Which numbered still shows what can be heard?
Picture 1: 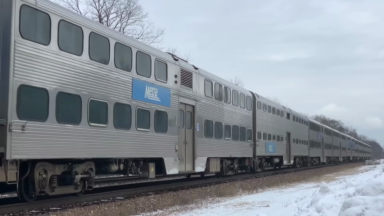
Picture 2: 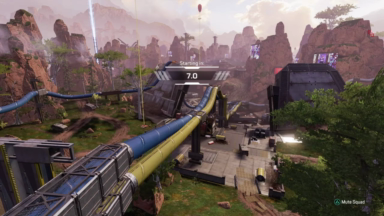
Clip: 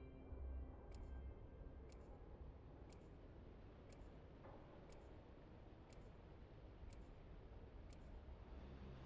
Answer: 2